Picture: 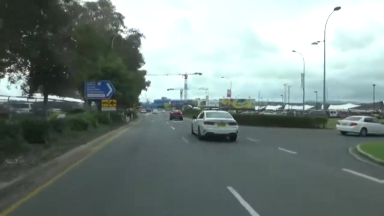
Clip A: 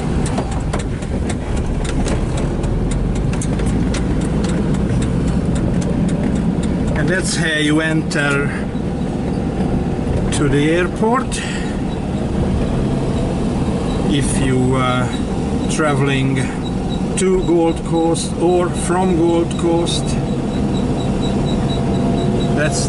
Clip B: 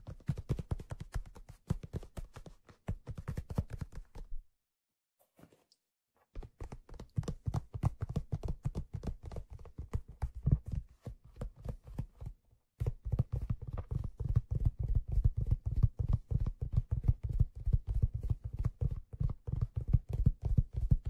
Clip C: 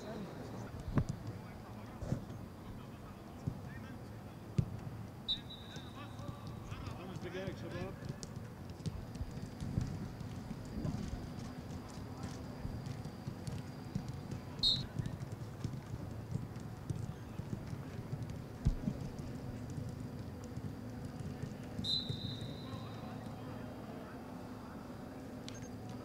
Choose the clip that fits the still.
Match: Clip A